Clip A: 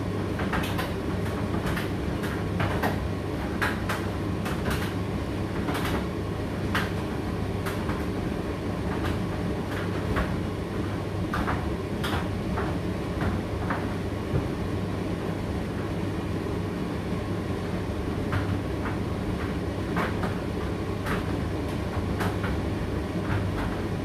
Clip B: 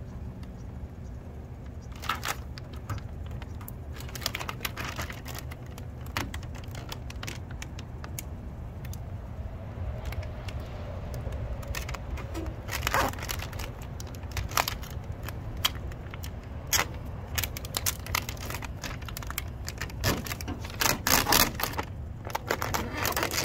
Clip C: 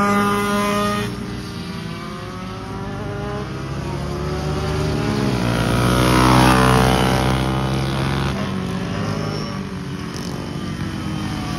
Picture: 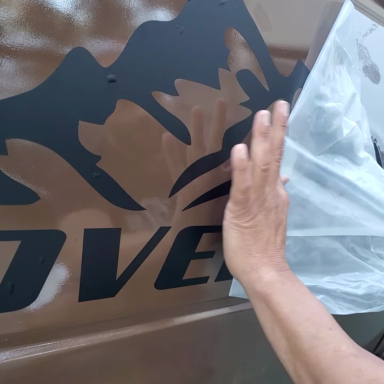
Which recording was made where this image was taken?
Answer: B